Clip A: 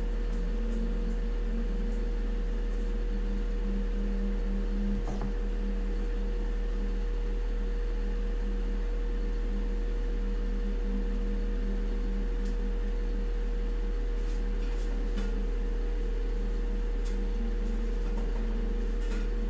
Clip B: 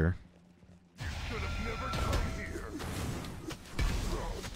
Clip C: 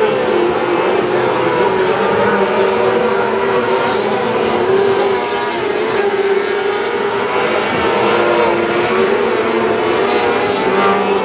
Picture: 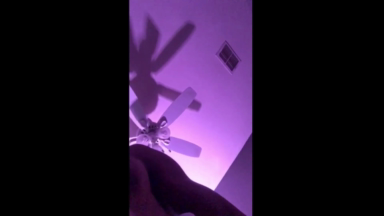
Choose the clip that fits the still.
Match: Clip A